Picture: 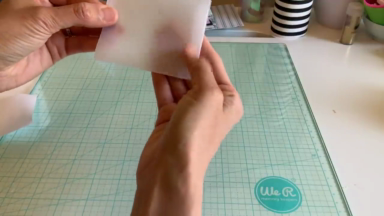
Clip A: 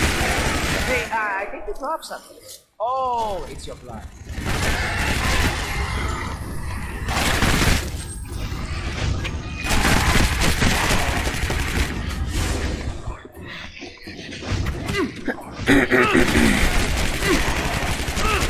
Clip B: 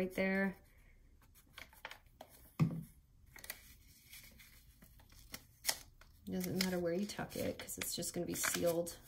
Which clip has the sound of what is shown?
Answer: B